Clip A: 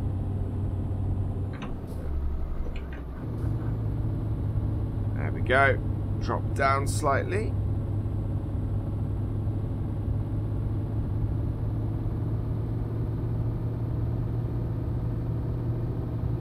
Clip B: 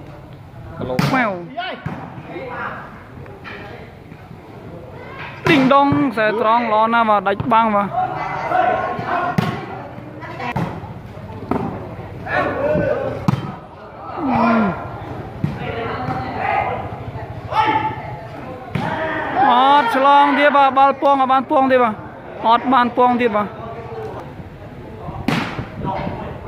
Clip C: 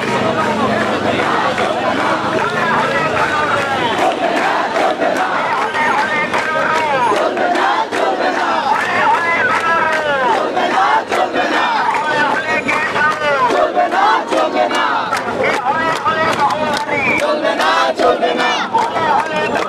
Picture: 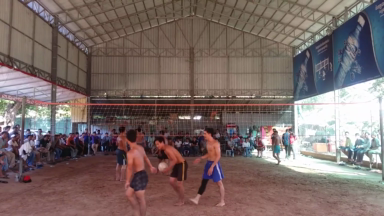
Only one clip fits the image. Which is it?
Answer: B